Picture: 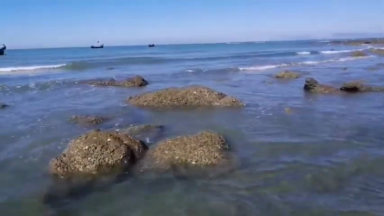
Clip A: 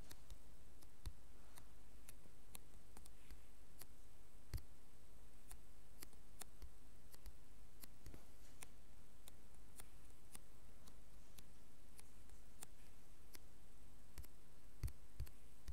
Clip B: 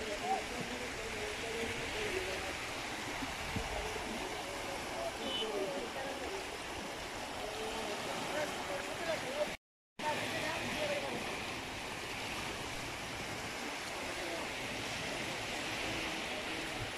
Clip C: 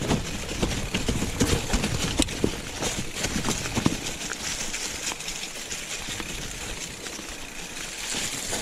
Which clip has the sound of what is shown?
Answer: B